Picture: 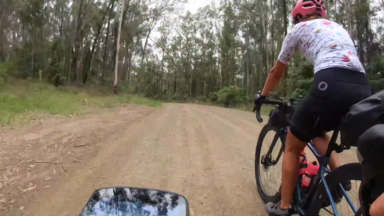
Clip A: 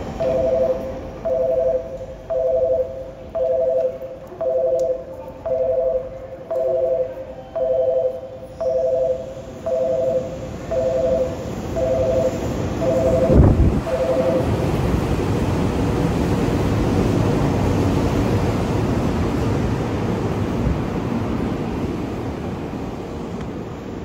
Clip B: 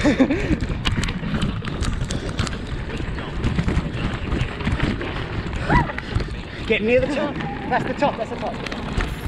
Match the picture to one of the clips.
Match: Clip B